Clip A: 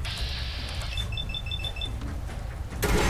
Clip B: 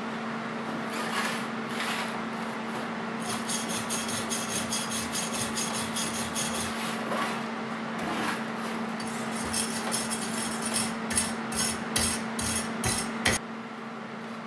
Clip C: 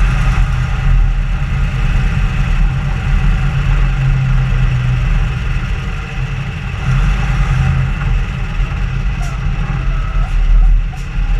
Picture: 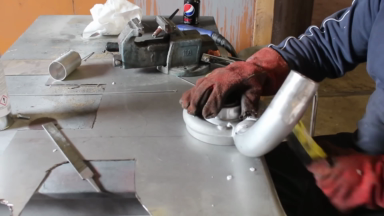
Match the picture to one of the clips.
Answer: B